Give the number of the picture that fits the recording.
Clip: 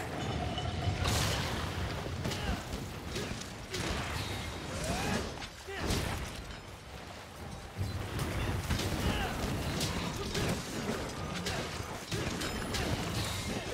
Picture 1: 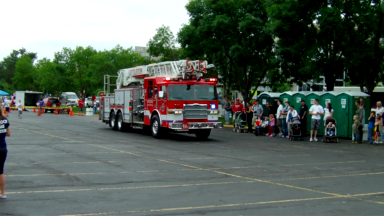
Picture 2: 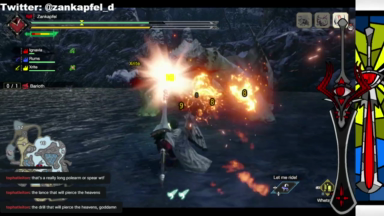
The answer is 2